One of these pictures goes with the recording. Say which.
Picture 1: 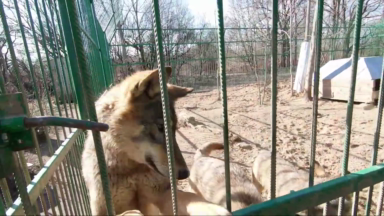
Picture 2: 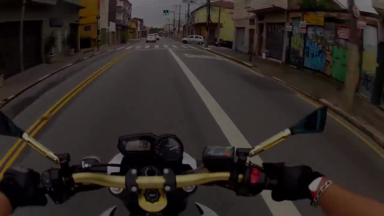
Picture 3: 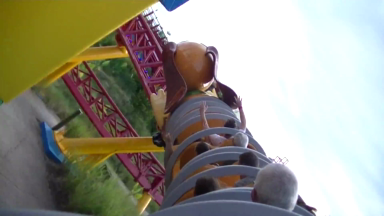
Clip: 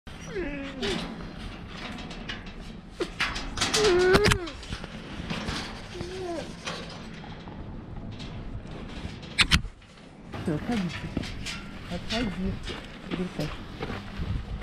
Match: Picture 1